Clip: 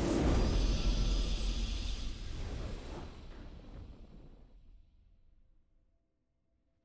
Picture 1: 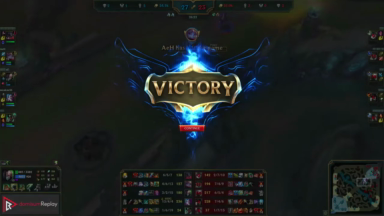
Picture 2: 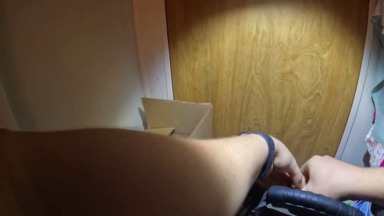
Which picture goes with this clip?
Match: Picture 1